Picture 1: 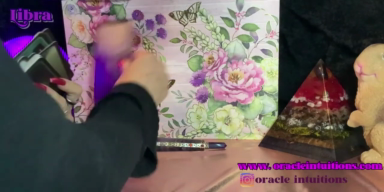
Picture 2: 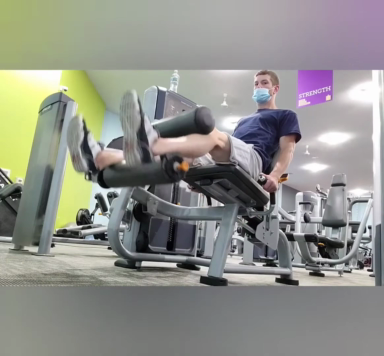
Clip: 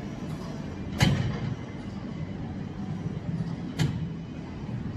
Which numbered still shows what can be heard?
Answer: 2